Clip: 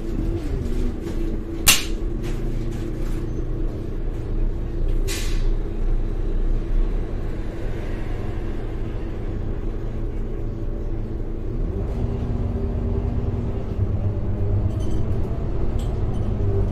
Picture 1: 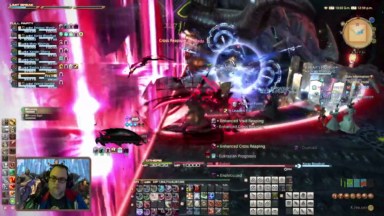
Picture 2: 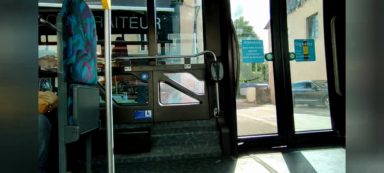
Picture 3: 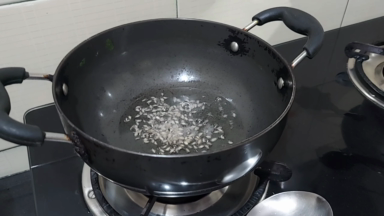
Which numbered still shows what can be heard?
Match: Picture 2